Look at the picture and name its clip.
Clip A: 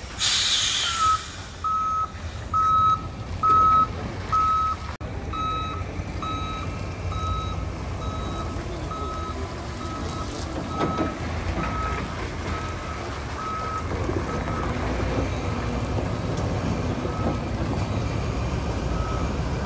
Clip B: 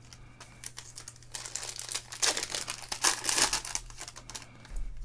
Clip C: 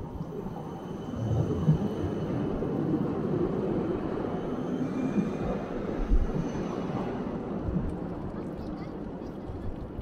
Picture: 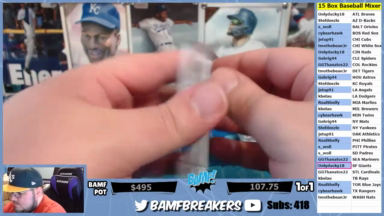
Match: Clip B